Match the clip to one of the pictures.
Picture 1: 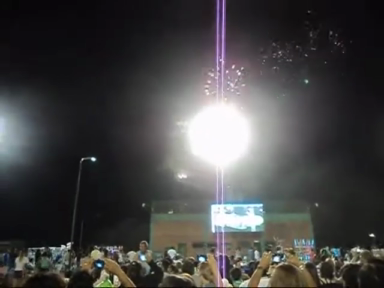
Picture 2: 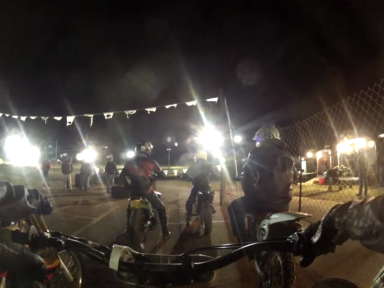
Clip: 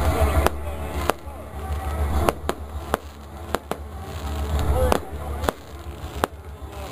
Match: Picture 1